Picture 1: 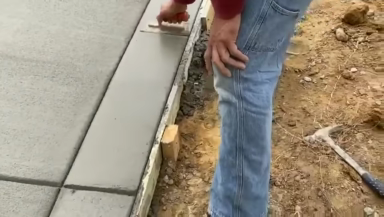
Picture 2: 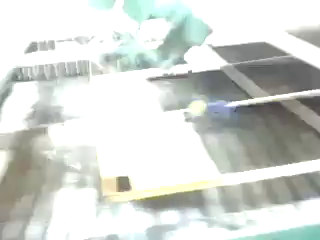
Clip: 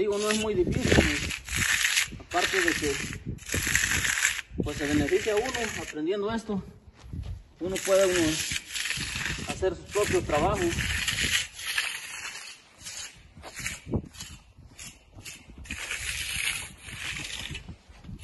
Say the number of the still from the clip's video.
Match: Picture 1